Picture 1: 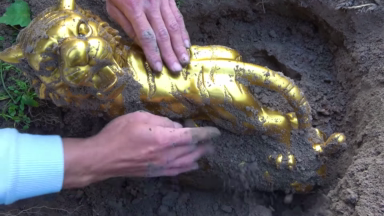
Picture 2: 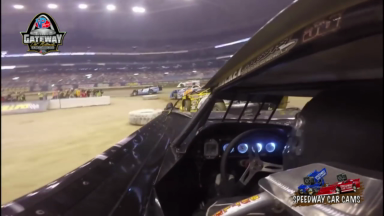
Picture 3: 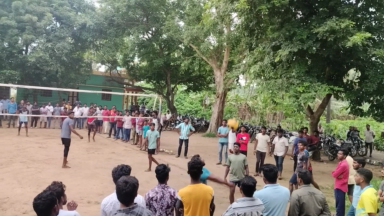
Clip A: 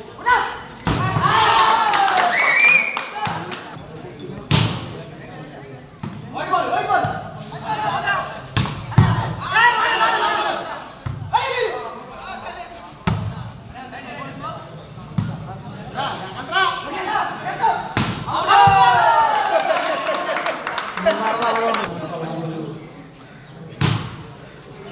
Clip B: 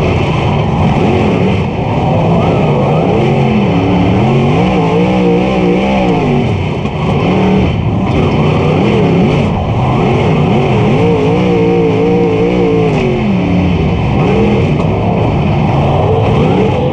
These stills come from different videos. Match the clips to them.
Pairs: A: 3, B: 2